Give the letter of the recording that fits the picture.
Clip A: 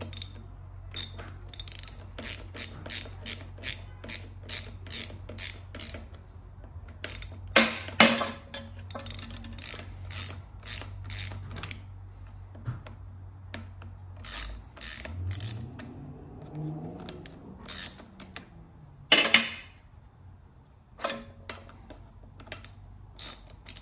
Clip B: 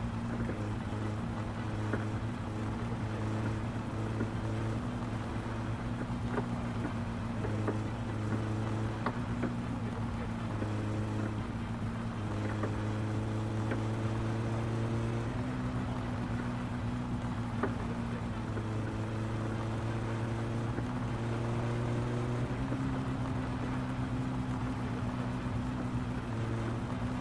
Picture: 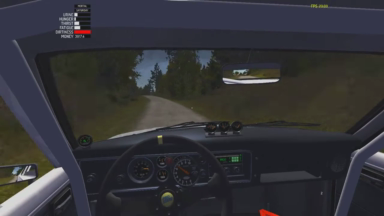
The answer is B